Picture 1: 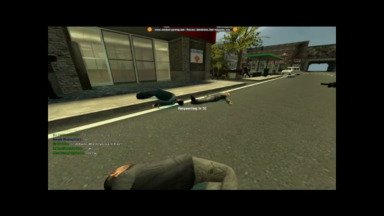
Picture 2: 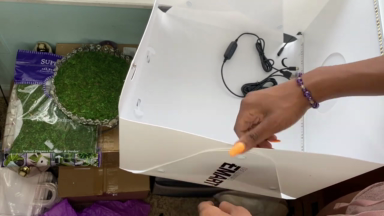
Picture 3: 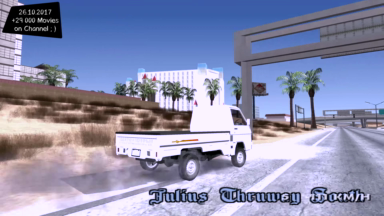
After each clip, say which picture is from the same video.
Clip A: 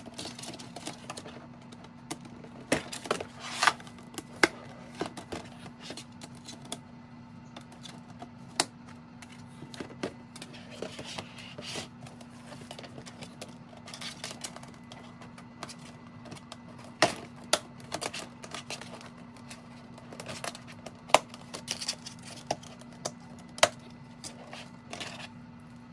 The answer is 2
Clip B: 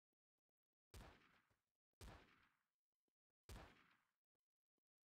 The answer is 1